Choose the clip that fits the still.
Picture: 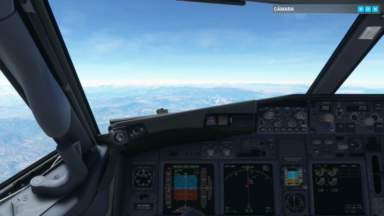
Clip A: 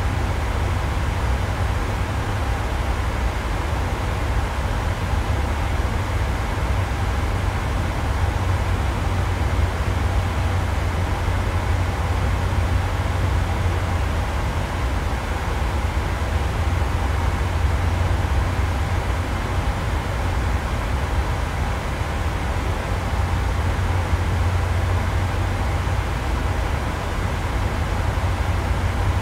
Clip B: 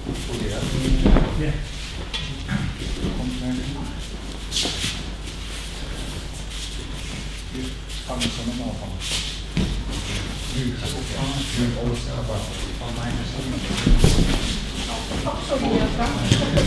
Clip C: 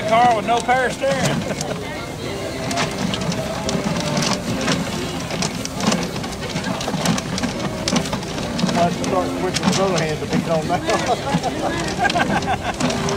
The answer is A